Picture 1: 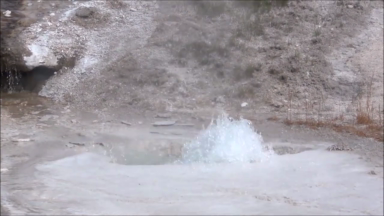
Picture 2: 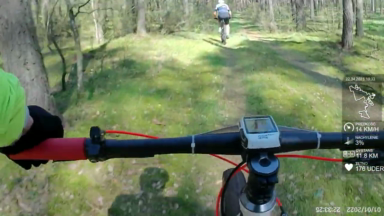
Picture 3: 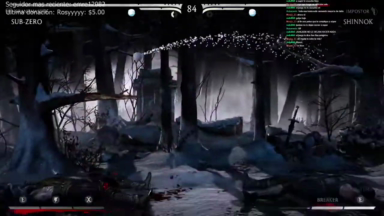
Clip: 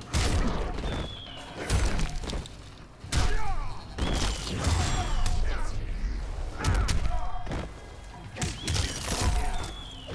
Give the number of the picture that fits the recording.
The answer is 3